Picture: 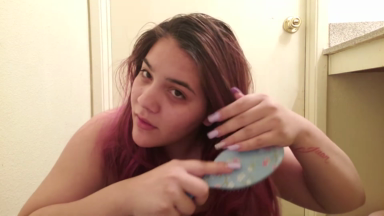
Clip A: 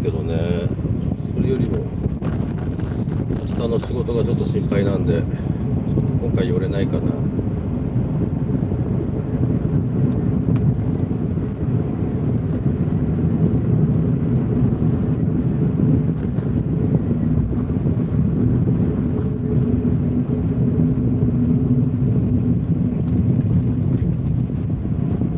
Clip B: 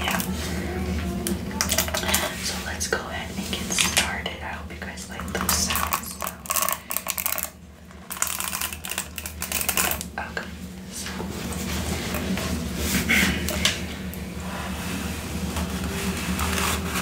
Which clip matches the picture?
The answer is B